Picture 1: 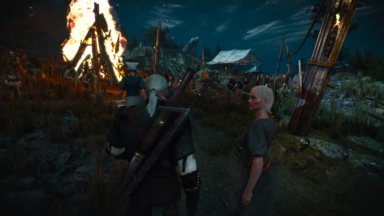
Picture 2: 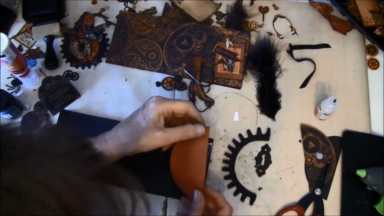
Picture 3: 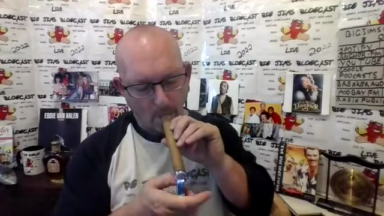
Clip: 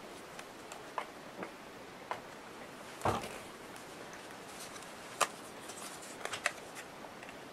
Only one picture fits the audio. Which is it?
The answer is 2